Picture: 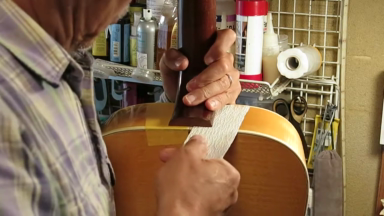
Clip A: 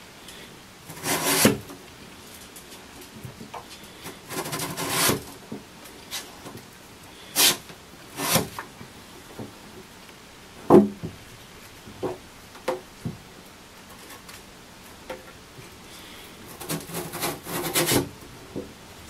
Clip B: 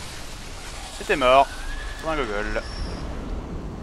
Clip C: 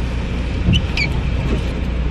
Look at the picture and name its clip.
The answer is A